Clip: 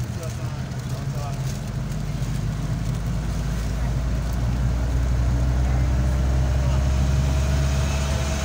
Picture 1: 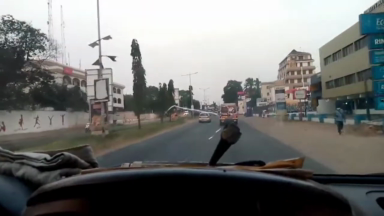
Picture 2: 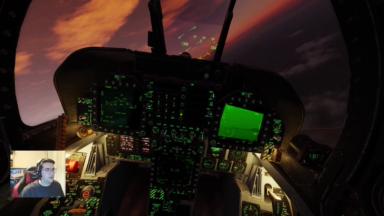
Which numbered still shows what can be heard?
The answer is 1